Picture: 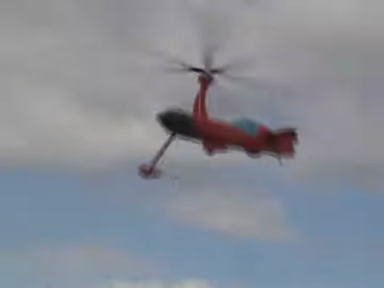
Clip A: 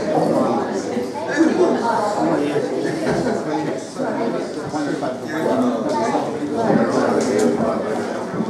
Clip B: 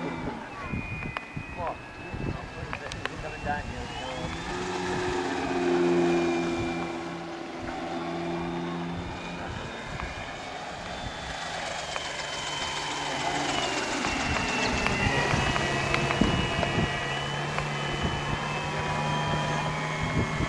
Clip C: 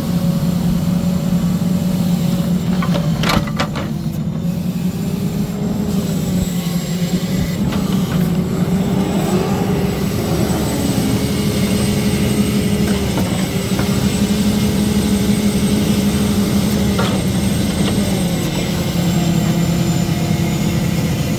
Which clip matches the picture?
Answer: B